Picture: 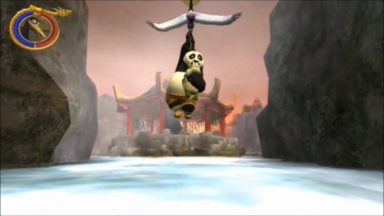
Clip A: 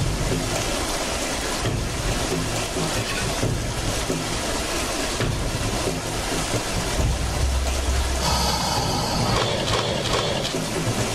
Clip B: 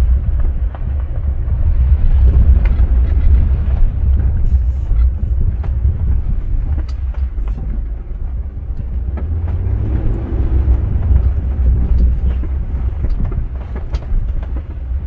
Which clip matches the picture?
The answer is A